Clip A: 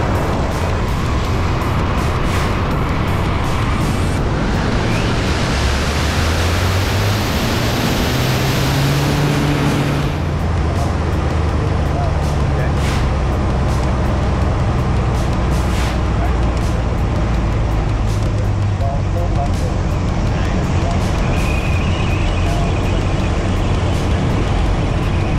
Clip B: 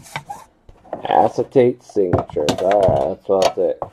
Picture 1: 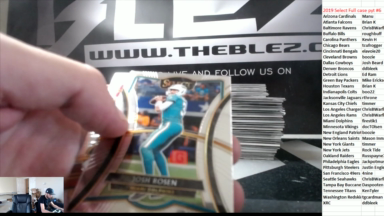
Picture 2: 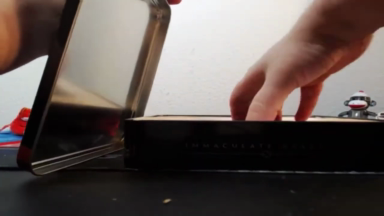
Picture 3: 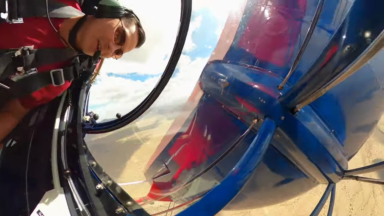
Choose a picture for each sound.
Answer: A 3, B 2